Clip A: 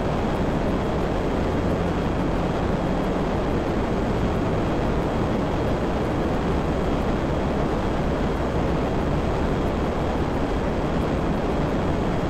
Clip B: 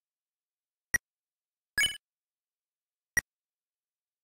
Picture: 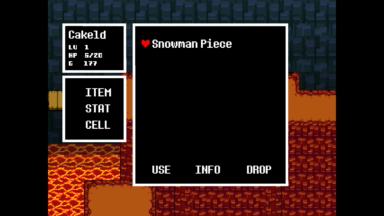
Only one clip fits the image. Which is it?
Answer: B